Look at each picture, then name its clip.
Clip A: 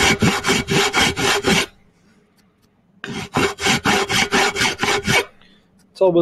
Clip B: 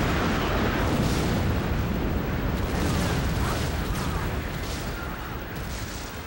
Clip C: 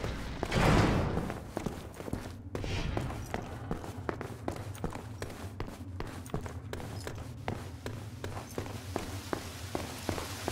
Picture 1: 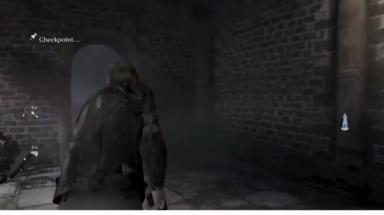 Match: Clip C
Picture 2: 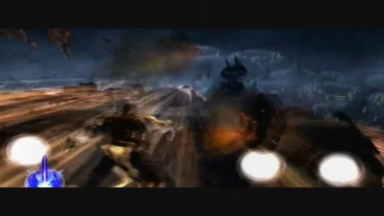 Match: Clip B